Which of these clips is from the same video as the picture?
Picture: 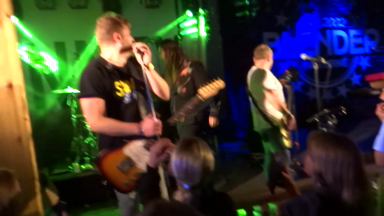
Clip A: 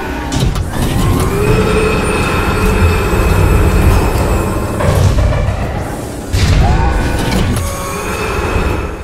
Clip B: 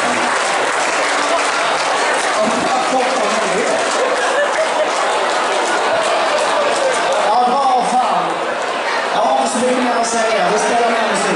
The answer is B